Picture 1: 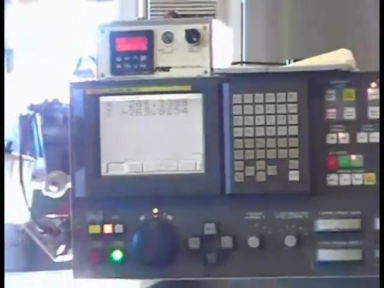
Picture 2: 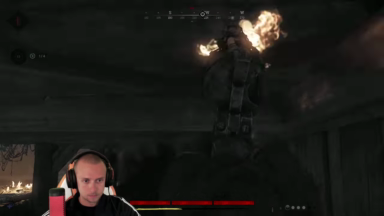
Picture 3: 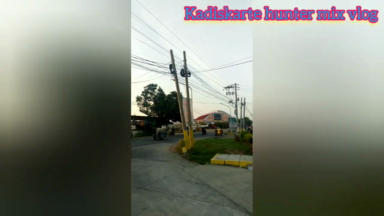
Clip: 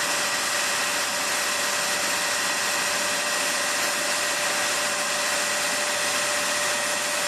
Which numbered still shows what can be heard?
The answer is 1